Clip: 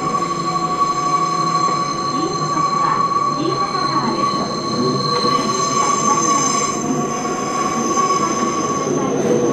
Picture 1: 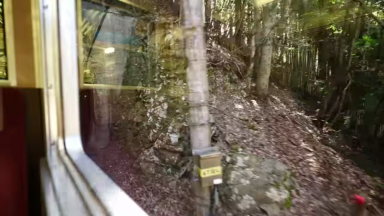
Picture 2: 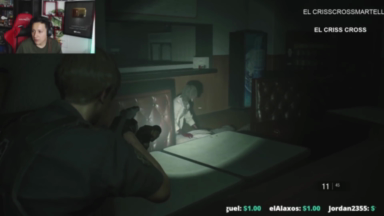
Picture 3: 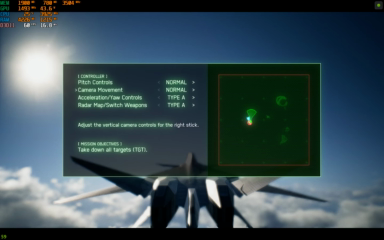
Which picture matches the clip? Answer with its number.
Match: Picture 1